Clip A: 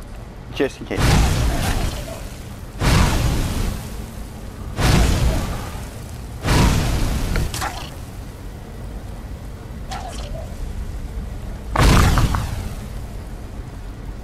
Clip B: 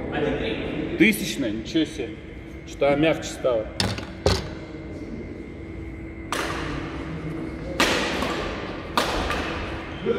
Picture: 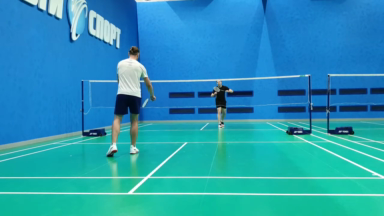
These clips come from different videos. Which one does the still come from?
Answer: B